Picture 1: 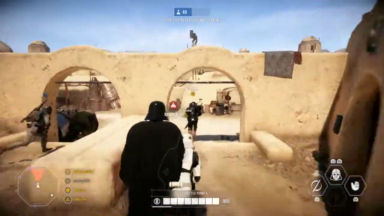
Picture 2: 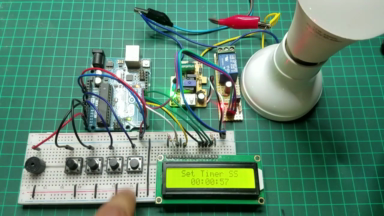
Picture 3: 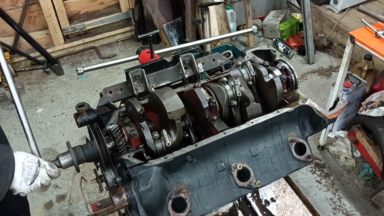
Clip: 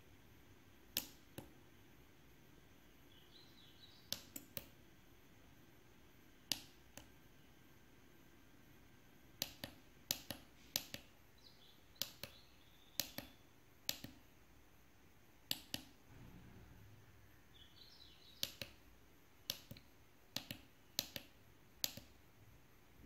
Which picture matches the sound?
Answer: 2